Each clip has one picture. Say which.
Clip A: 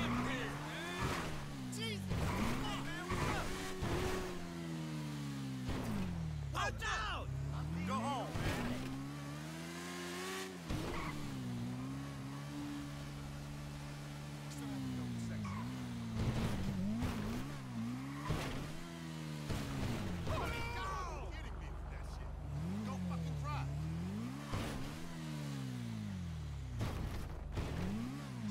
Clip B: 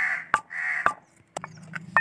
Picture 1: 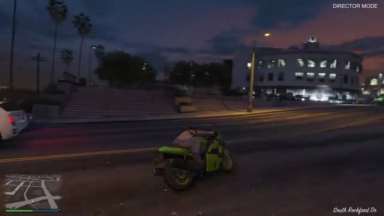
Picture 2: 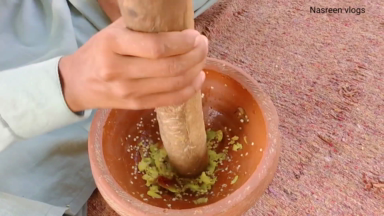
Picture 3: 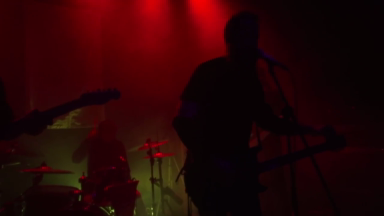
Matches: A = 1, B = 2